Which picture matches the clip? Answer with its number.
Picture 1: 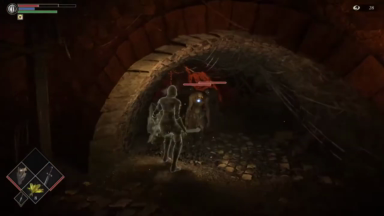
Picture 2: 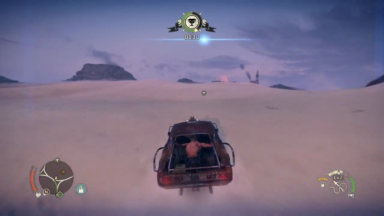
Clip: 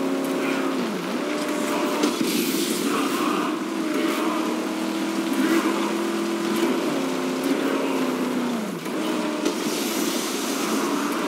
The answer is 2